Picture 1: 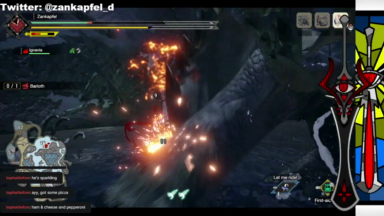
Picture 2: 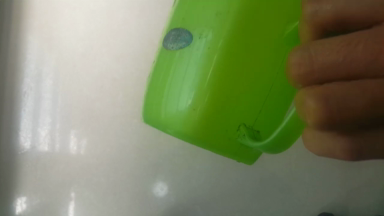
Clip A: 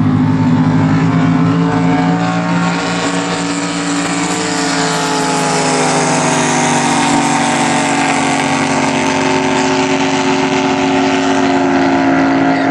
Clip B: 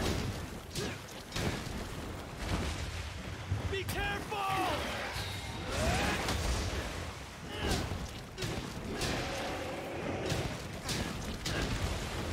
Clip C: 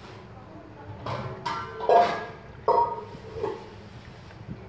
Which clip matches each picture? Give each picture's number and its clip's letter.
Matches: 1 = B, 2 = C